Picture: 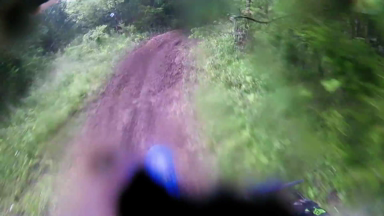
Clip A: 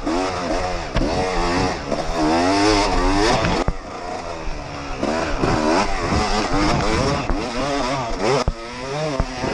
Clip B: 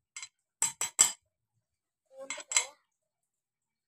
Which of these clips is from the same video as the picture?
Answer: A